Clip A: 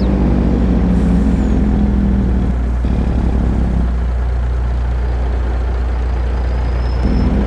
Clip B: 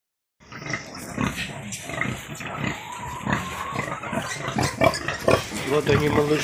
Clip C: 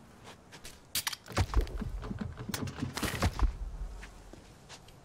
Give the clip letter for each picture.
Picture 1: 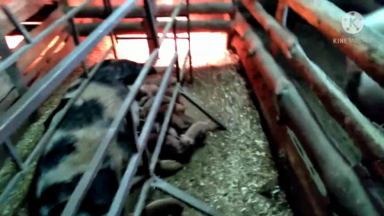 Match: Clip B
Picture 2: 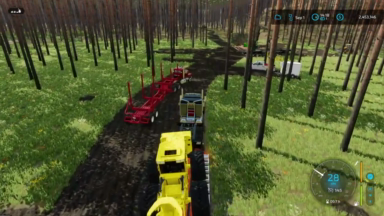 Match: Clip A